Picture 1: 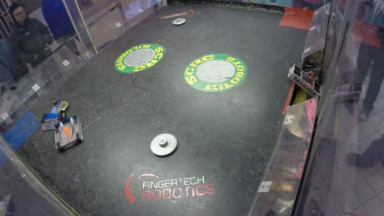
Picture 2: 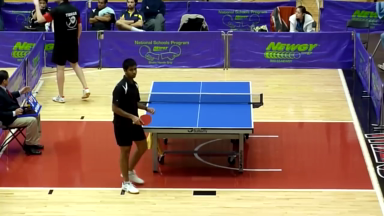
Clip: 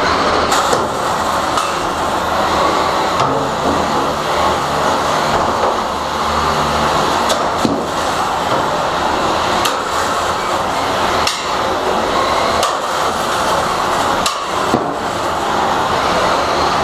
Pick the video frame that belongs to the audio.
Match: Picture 1